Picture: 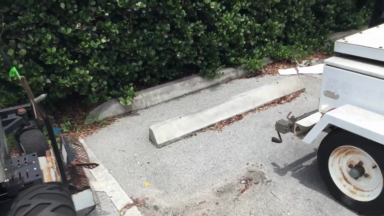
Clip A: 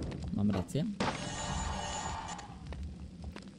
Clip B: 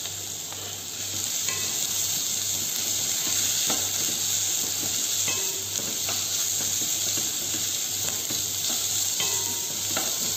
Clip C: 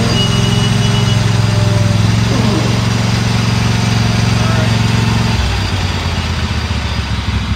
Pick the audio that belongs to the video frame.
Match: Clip C